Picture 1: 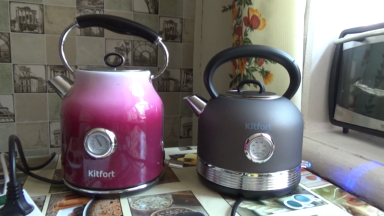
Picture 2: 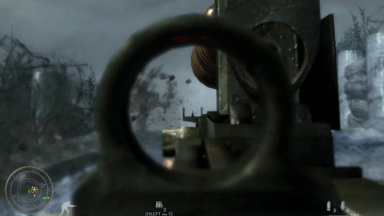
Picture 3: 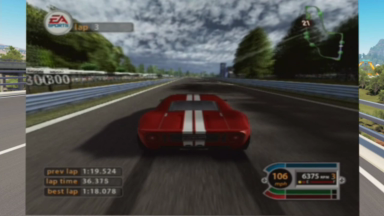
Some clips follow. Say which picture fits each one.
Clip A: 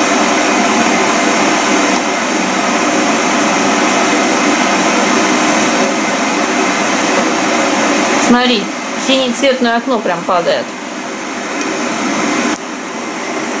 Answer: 1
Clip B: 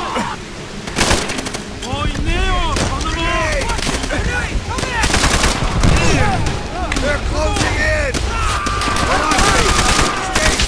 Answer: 2